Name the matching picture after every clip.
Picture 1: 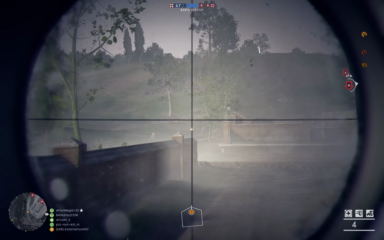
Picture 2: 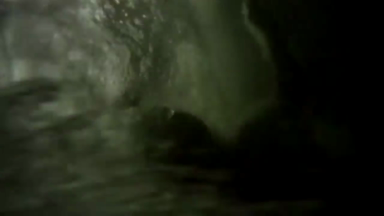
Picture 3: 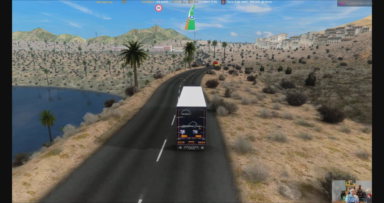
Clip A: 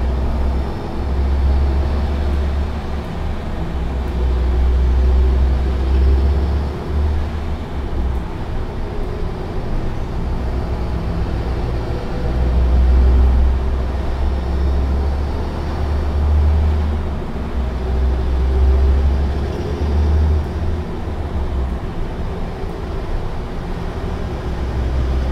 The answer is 3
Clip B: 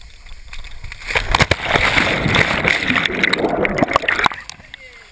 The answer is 2